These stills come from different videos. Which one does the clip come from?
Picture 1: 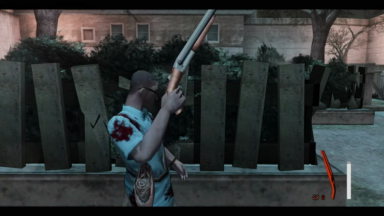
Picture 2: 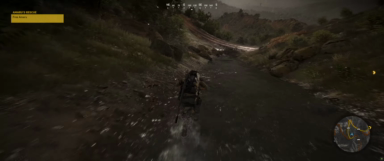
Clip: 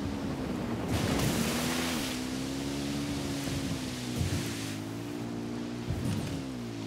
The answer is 2